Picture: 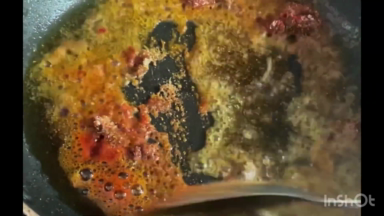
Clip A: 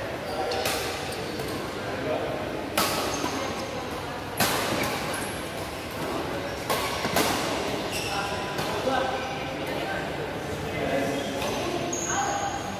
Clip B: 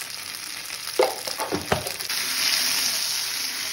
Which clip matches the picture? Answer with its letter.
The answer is B